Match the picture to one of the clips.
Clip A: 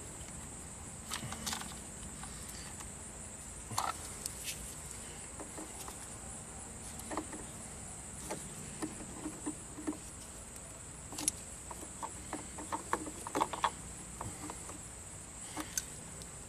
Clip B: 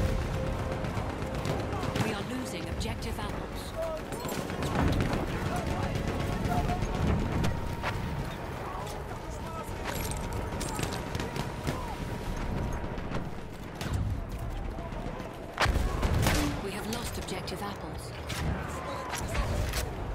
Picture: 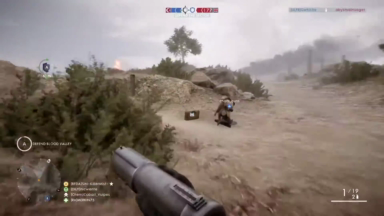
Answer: B